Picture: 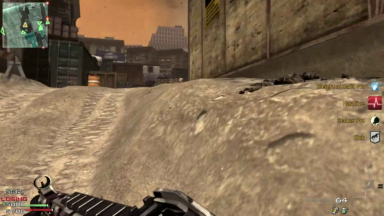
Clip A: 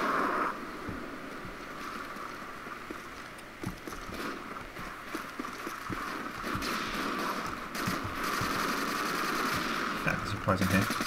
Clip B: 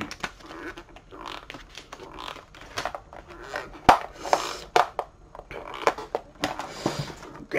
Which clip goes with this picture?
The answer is A